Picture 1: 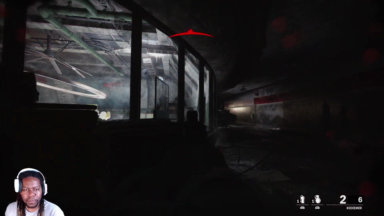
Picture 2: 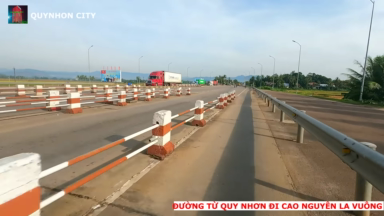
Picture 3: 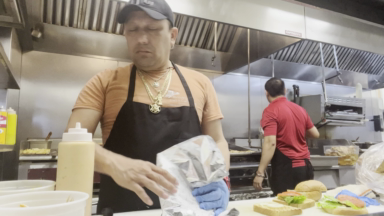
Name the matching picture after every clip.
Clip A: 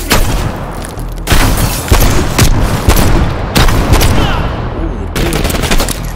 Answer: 1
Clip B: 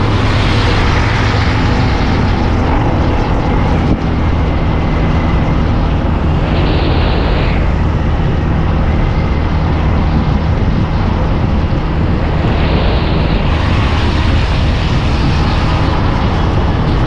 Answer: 2